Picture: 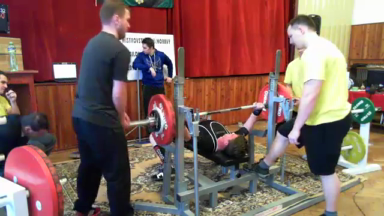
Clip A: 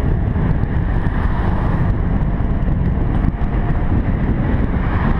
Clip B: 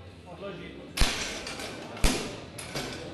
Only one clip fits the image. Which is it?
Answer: B